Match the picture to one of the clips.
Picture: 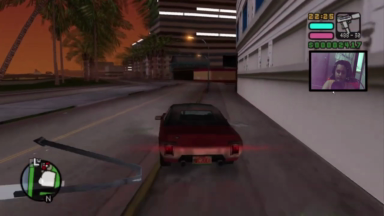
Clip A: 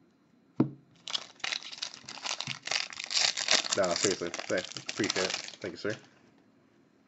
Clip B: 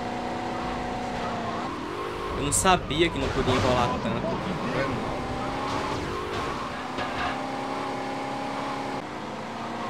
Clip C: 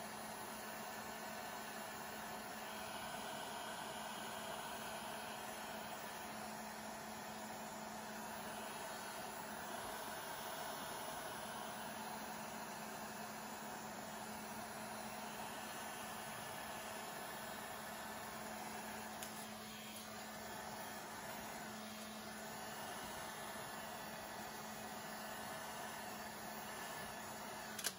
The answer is B